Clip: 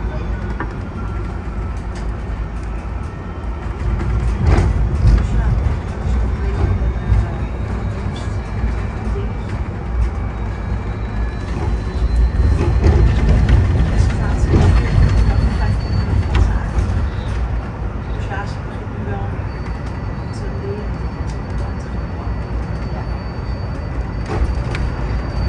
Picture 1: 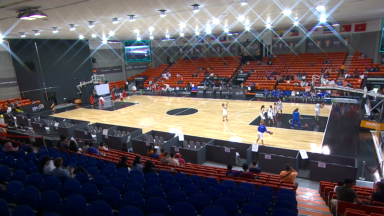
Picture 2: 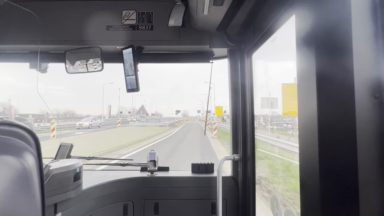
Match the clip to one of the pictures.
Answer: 2